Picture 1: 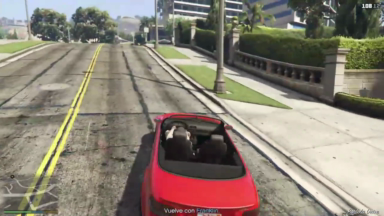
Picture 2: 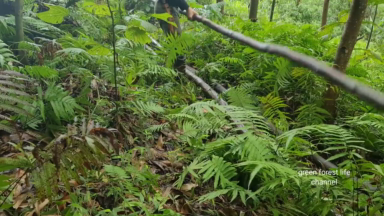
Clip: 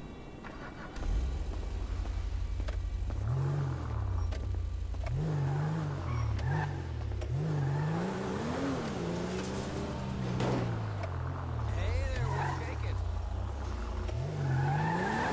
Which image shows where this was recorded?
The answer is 1